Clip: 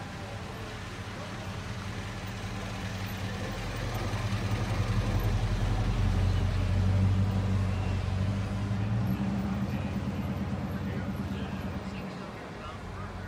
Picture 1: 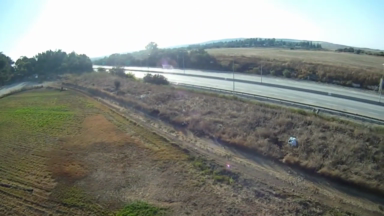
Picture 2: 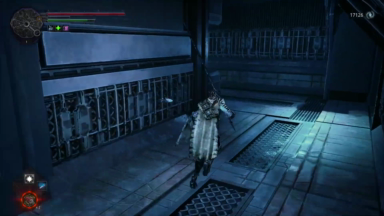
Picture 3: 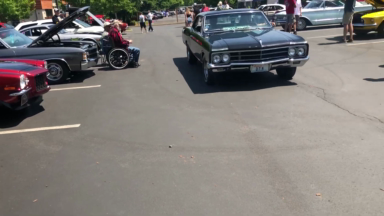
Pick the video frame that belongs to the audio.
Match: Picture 3